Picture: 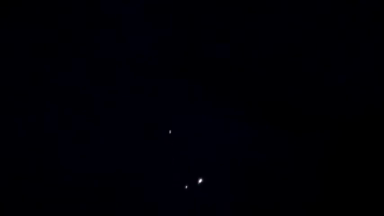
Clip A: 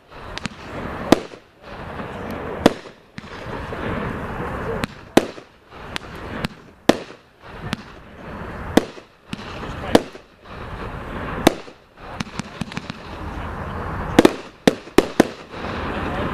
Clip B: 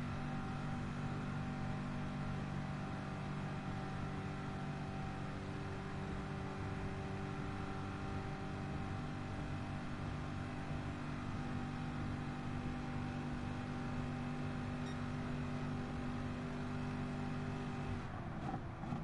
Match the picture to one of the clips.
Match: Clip A